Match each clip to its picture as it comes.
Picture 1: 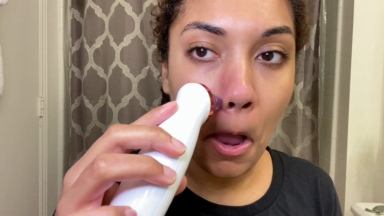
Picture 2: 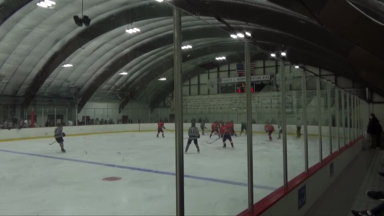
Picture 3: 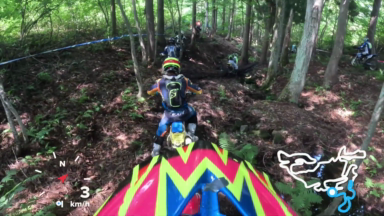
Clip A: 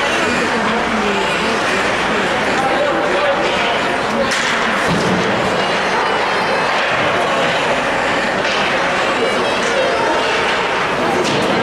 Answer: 2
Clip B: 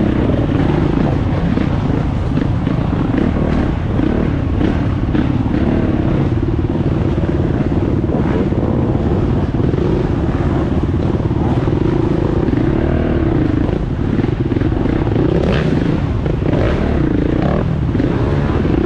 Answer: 3